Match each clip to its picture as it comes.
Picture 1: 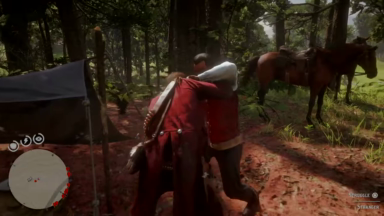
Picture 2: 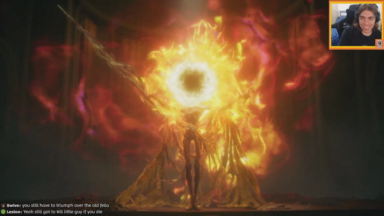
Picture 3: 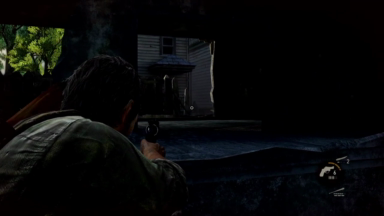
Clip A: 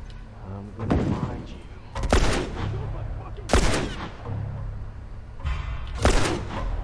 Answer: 3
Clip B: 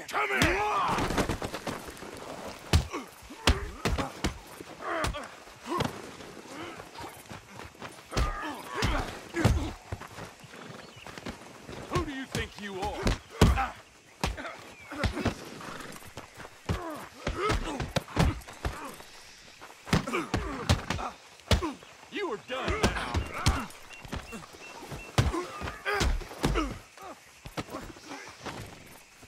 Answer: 1